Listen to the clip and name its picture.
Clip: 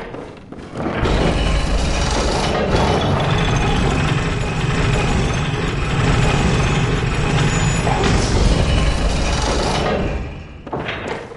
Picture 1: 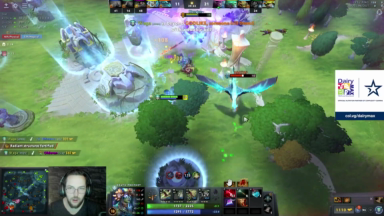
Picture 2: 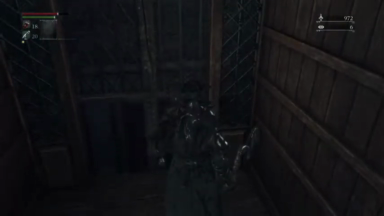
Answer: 2